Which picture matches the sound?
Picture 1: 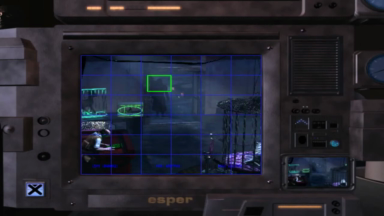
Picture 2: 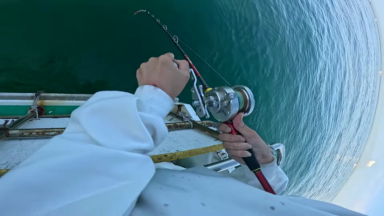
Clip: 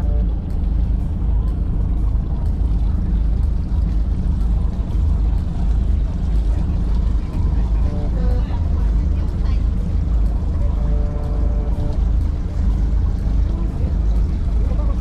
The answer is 2